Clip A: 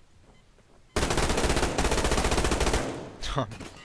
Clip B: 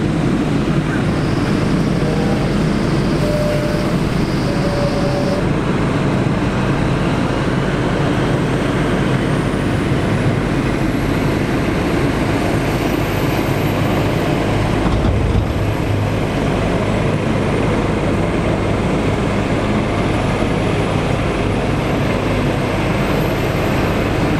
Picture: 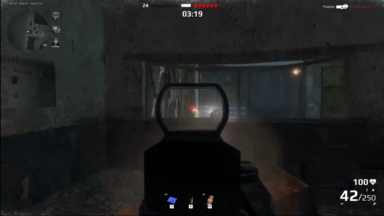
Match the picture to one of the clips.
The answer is A